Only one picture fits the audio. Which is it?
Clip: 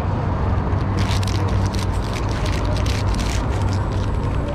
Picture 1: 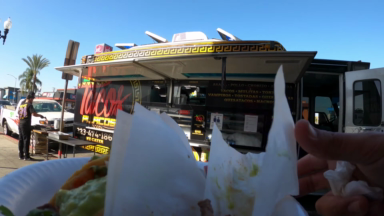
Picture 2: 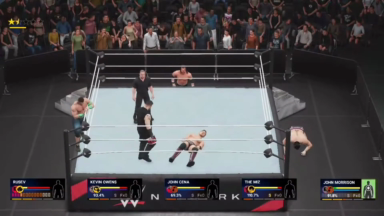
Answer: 1